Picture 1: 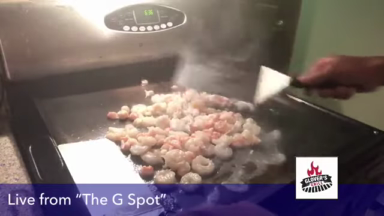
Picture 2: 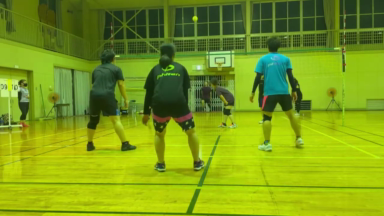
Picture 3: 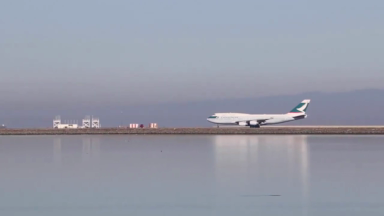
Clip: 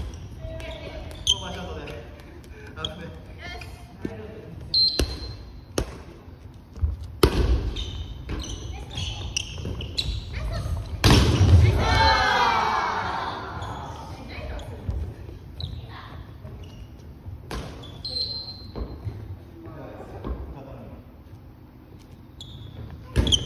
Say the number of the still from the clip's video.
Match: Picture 2